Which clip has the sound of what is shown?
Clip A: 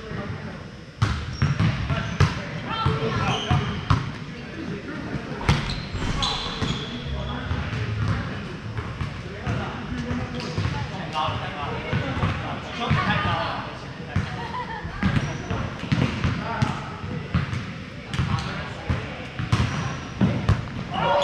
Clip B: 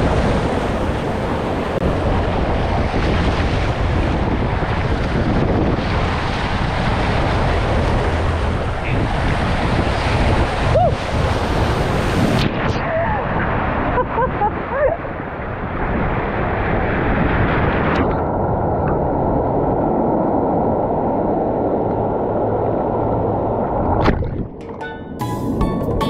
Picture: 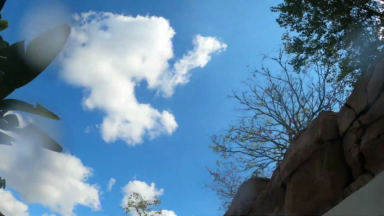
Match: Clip B